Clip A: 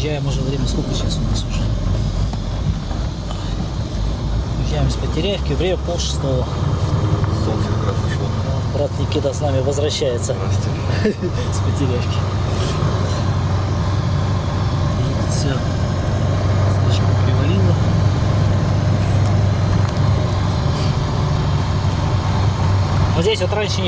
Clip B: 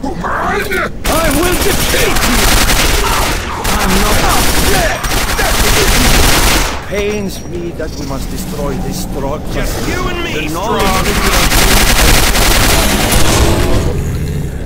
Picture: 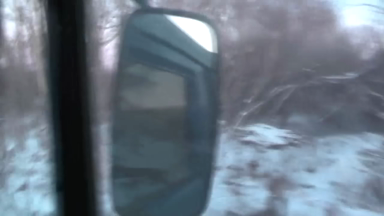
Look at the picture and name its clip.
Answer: A